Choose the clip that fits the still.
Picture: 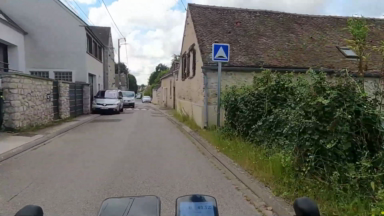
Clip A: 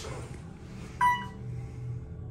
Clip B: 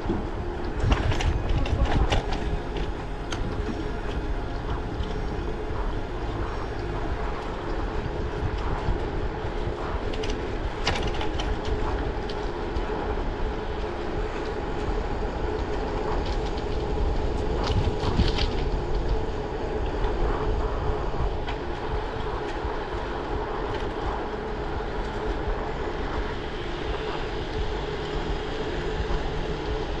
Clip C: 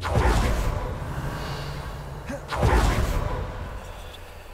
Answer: B